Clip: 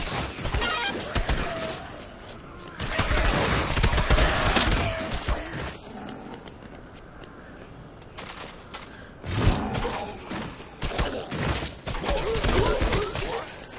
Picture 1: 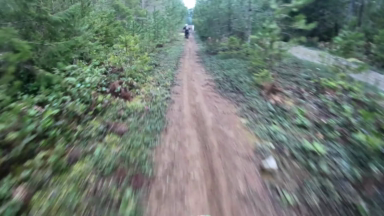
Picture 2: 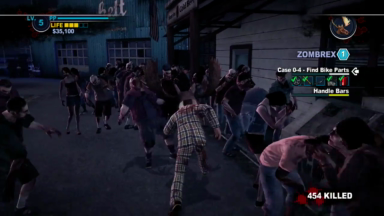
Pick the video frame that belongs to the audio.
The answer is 2